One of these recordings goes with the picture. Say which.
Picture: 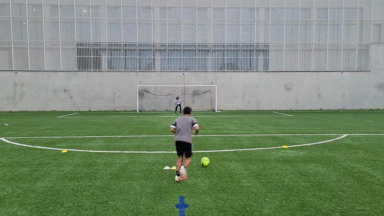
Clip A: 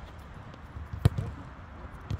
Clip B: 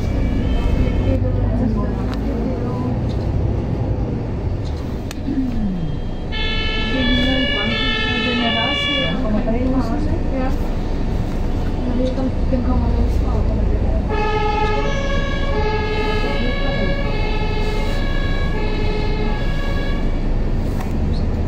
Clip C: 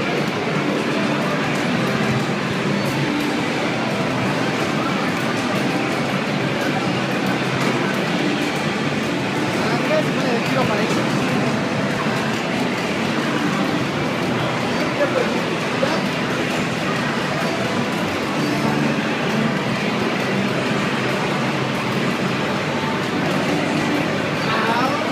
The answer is A